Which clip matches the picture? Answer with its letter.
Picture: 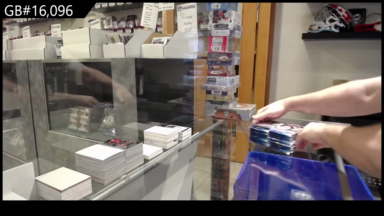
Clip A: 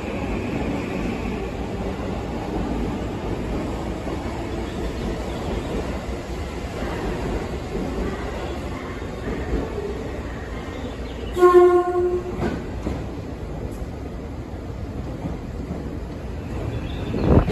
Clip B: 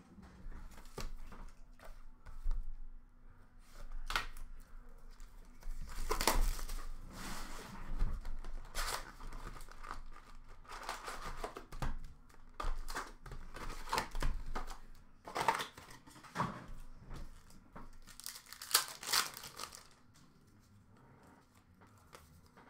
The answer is B